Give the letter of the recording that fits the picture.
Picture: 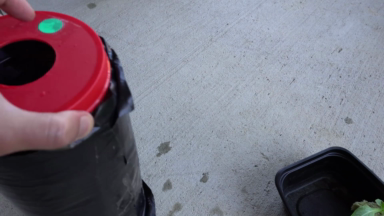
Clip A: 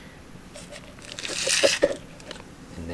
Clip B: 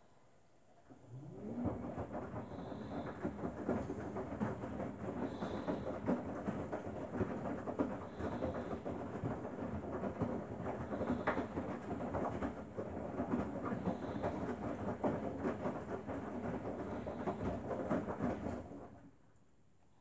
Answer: A